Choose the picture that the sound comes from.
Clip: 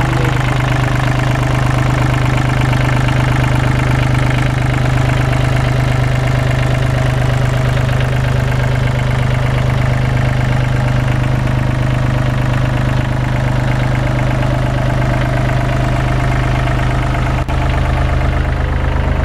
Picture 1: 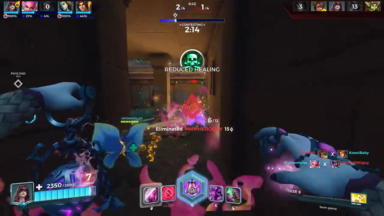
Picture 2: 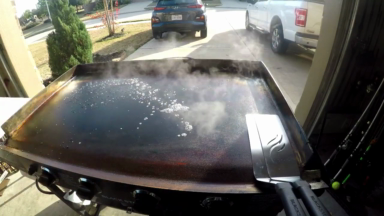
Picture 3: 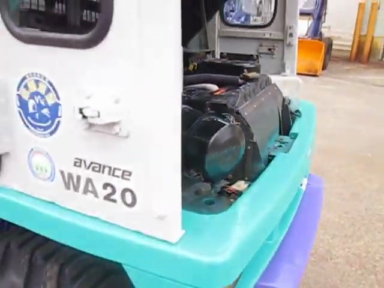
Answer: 3